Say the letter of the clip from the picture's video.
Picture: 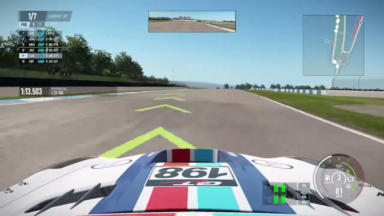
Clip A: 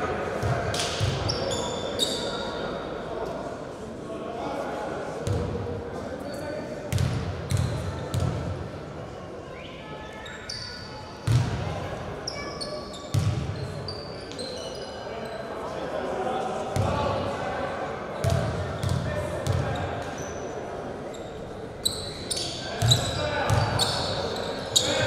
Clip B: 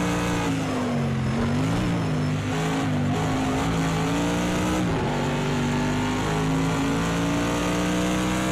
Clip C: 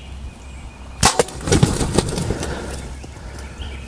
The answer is B